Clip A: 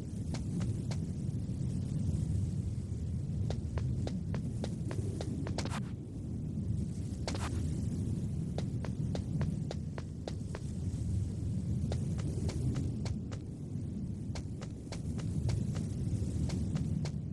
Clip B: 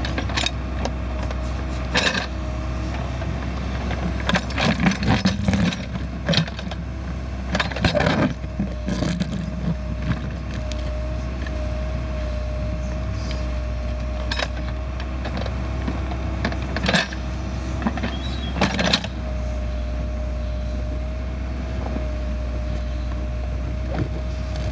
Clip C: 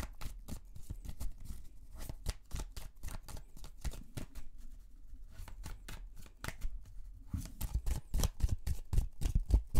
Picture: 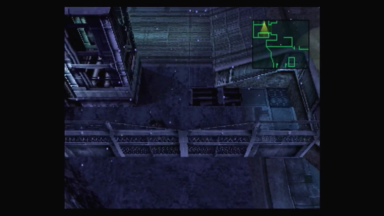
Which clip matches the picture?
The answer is A